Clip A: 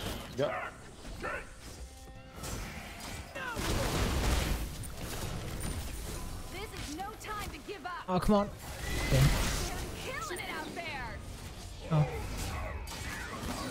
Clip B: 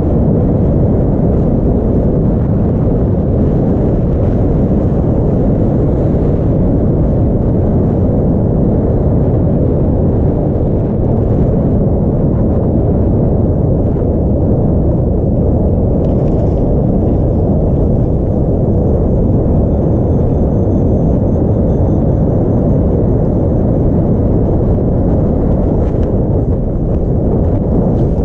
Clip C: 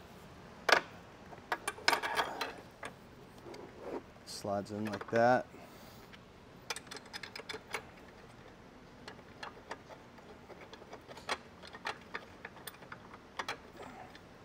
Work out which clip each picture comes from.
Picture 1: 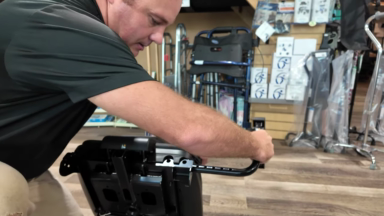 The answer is C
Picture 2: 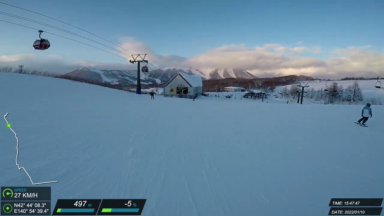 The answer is B